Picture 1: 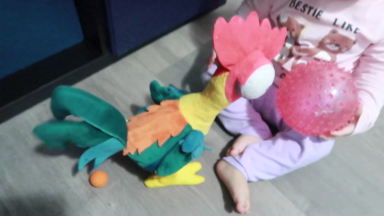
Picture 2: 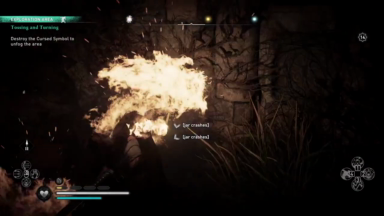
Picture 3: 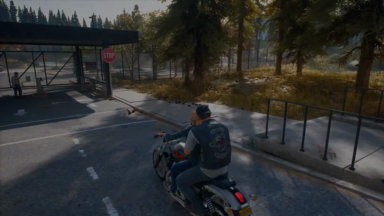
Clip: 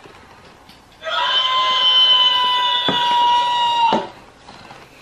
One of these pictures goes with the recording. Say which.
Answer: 1